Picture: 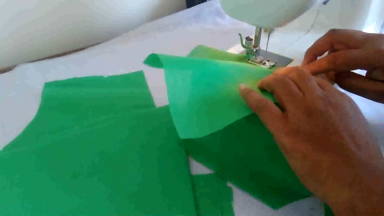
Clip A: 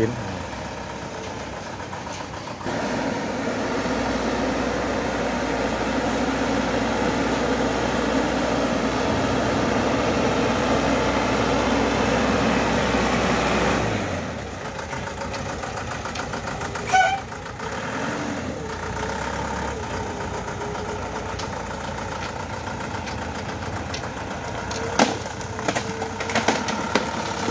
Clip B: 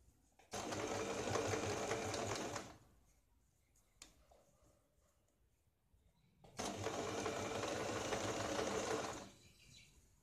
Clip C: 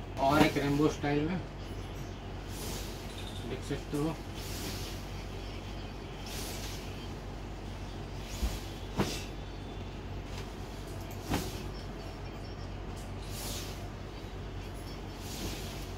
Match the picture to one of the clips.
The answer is B